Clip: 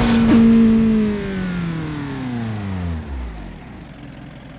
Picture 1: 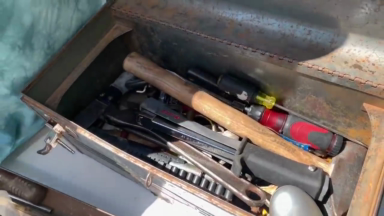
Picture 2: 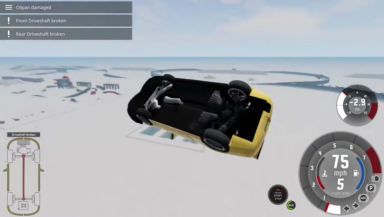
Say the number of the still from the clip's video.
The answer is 2